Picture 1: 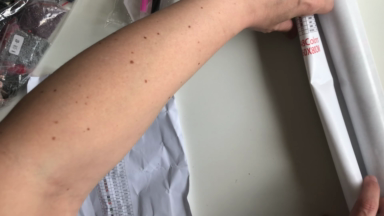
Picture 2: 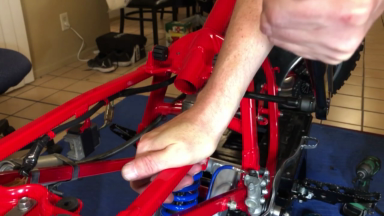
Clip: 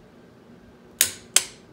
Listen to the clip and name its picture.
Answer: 2